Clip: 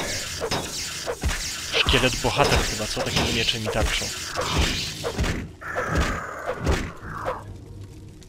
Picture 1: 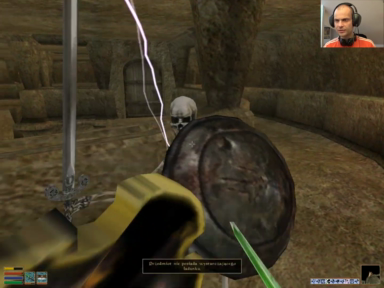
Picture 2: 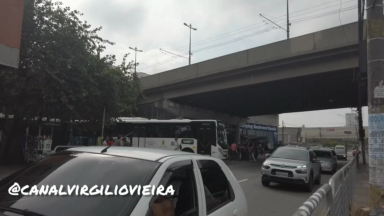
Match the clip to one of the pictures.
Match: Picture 1